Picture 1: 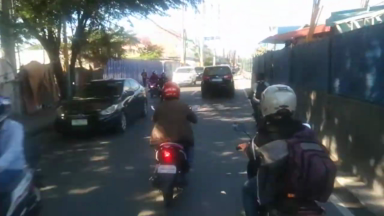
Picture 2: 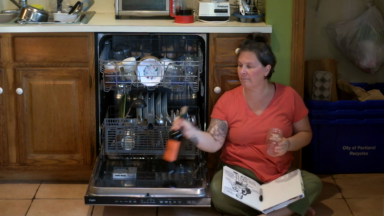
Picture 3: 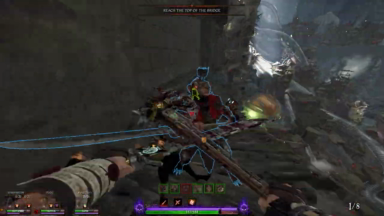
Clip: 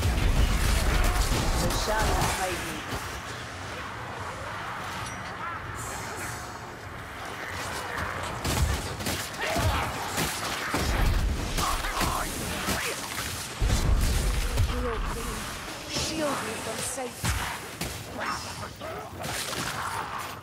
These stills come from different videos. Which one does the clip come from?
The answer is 3